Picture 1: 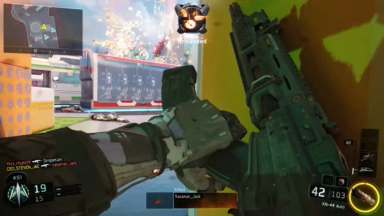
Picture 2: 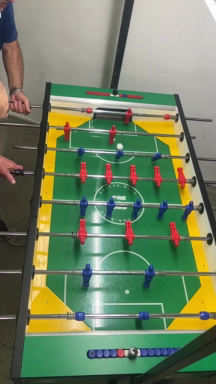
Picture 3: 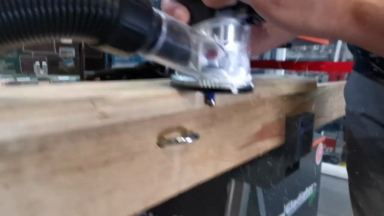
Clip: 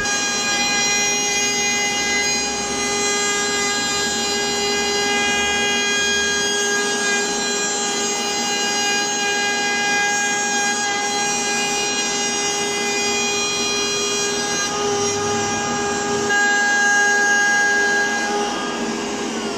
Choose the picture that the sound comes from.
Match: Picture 3